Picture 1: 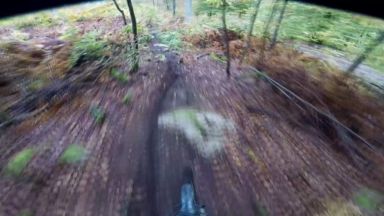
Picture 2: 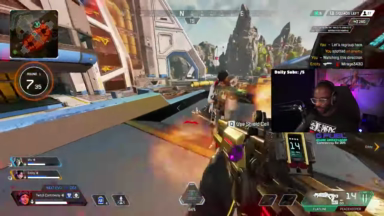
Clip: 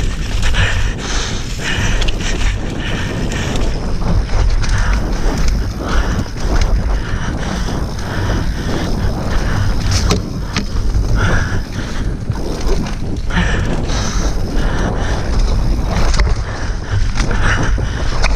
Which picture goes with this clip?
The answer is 1